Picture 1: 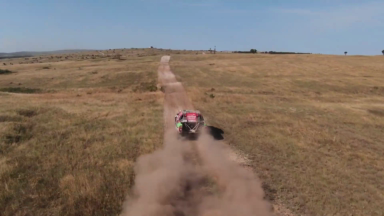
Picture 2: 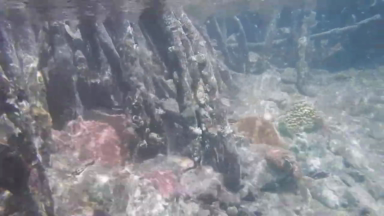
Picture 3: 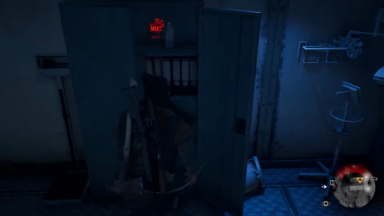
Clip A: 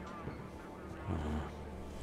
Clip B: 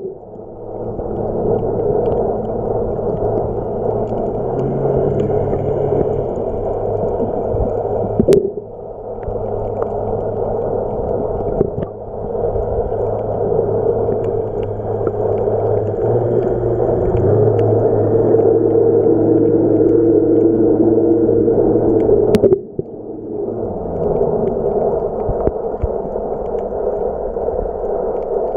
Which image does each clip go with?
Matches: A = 3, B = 2